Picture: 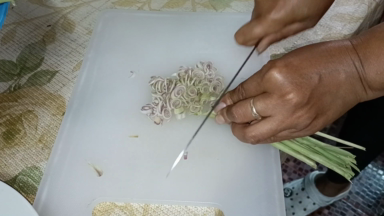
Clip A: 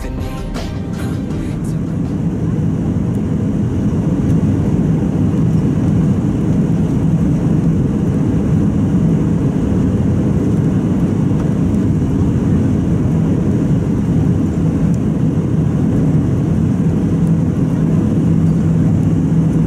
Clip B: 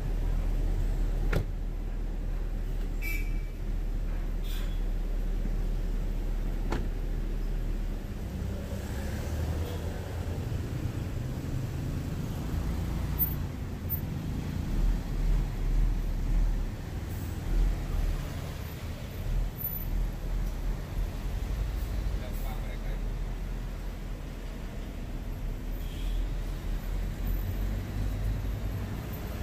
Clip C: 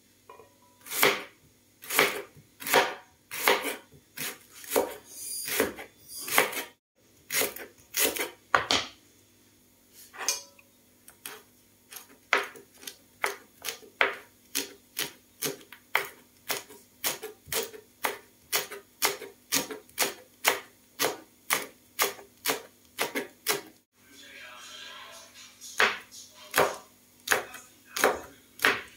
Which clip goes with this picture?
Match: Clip C